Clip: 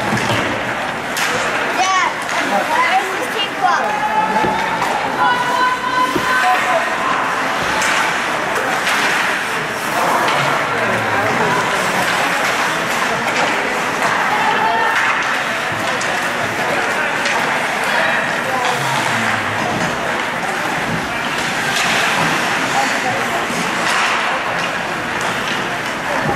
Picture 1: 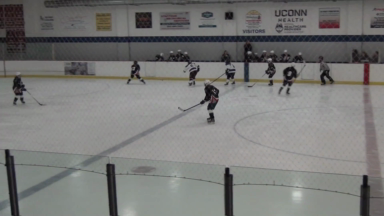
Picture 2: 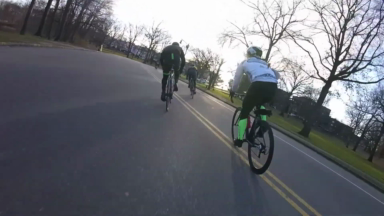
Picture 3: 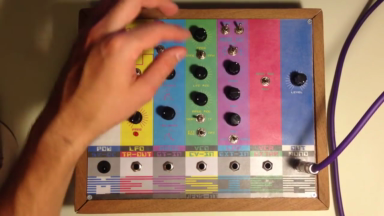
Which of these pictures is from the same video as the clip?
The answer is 1